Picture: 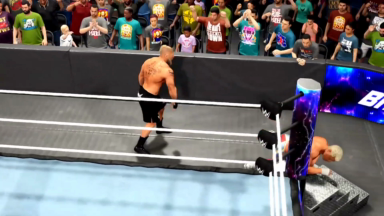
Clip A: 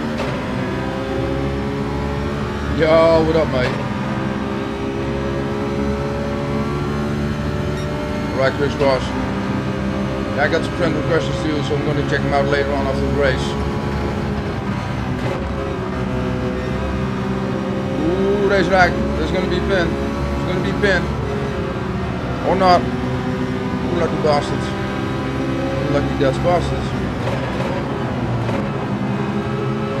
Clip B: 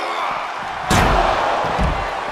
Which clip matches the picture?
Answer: B